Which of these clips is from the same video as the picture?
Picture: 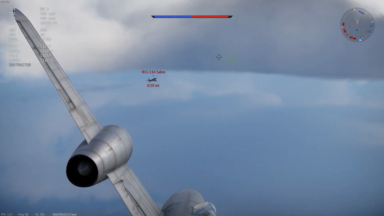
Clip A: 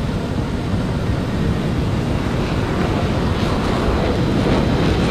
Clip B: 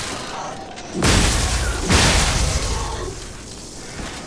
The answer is A